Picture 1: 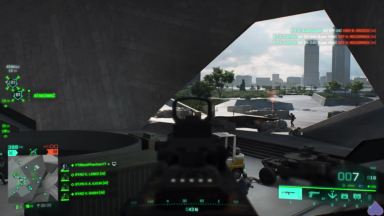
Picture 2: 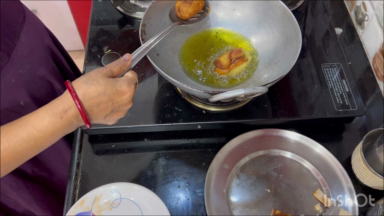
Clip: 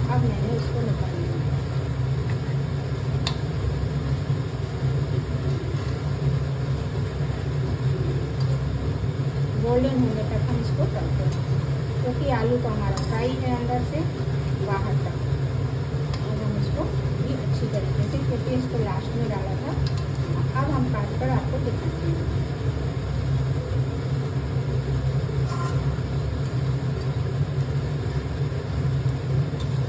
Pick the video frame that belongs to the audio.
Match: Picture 2